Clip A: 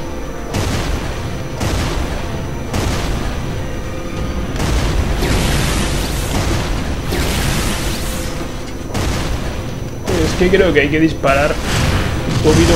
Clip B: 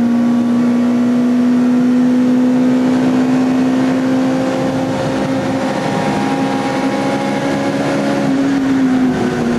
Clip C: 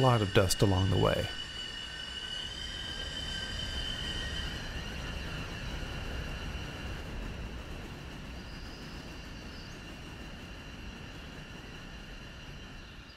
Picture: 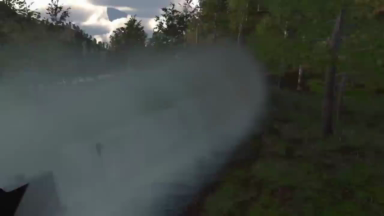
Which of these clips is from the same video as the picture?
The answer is C